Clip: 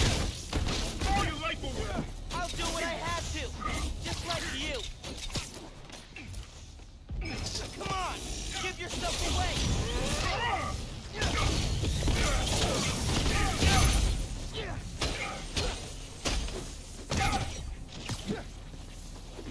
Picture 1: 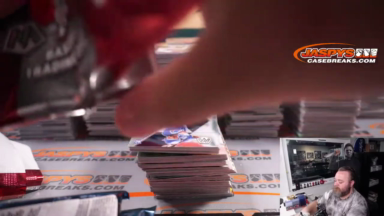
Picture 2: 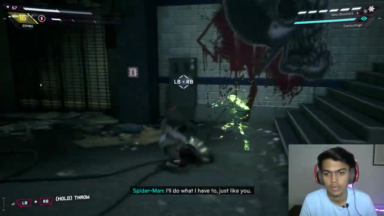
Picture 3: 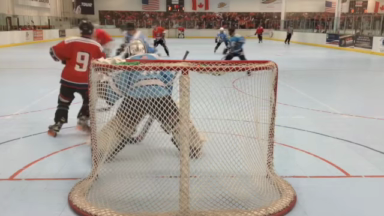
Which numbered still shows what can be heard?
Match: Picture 2